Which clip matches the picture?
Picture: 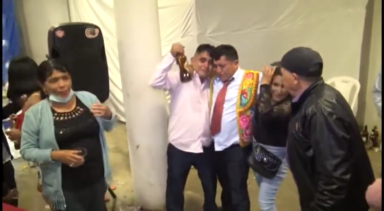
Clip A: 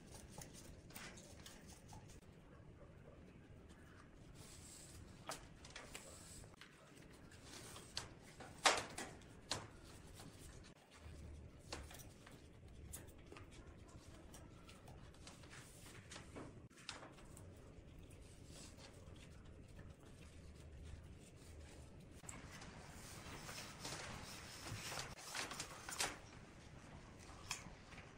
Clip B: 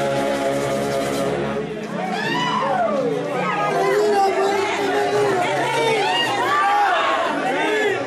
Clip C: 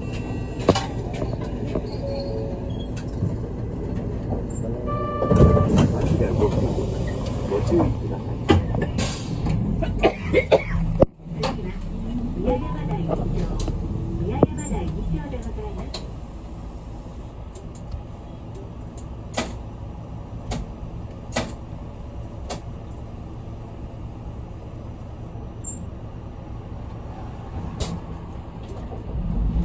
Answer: B